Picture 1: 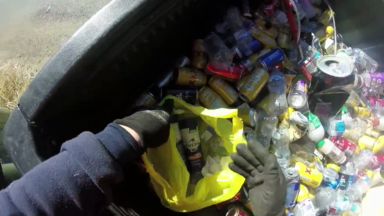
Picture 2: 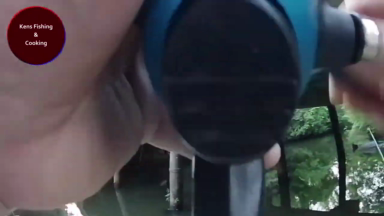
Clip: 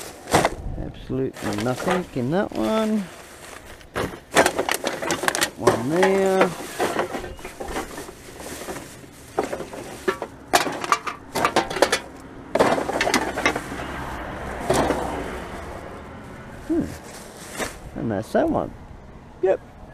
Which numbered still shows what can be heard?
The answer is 1